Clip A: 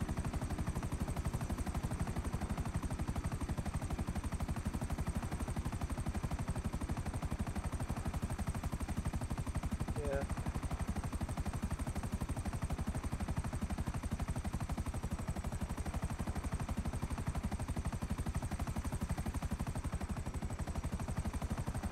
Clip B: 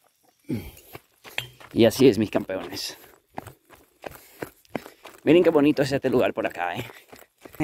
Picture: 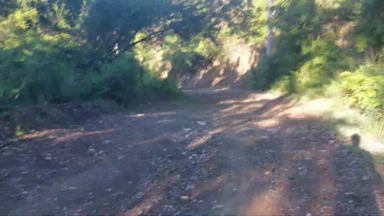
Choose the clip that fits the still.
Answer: B